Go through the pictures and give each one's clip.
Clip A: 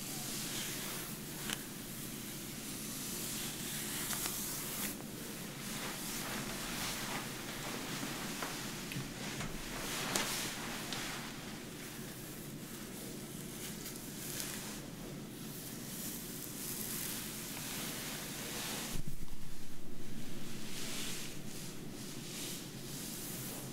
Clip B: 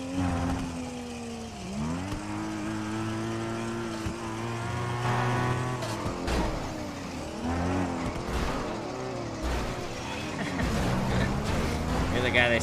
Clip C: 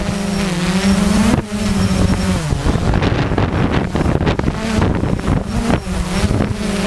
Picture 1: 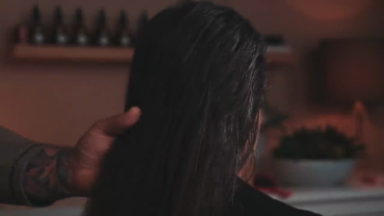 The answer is A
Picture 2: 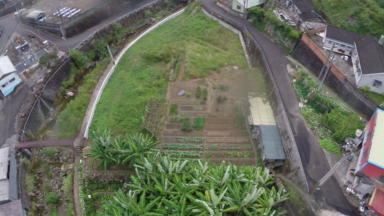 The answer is C